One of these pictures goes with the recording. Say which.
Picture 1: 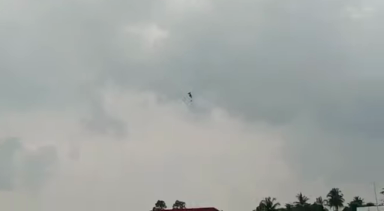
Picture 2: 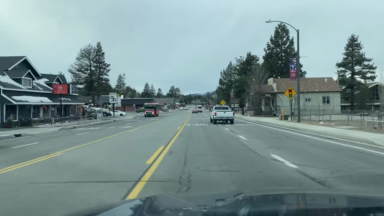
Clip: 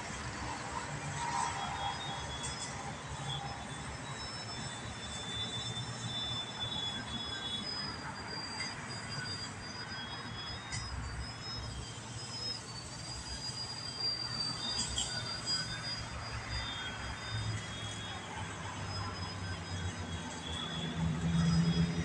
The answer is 1